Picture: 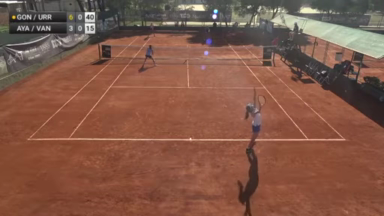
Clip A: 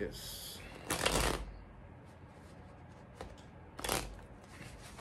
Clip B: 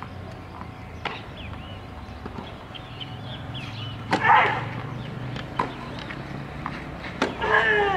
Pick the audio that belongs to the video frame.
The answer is B